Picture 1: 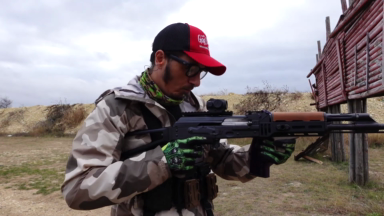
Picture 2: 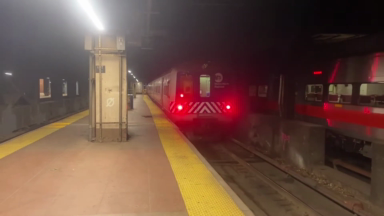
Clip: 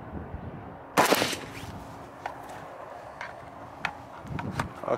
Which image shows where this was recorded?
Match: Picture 1